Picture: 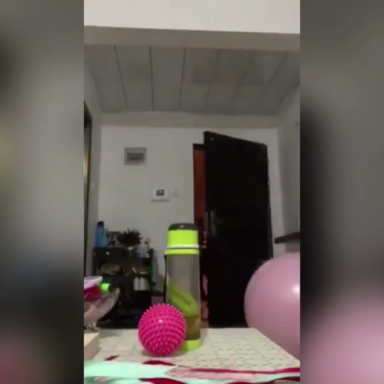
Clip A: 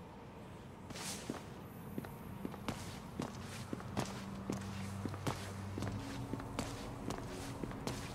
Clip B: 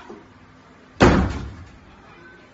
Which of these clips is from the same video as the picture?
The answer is B